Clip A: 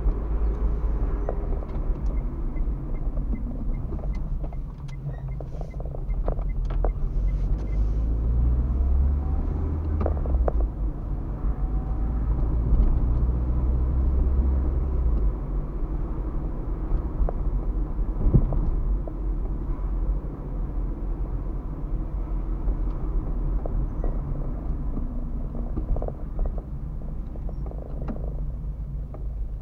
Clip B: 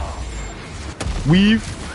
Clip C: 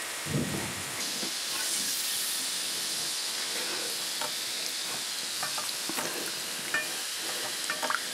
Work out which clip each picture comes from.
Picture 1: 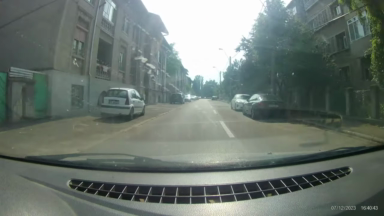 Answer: A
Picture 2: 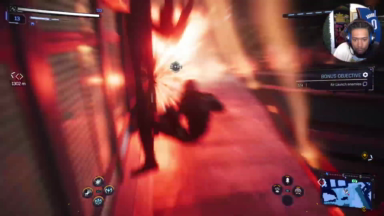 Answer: B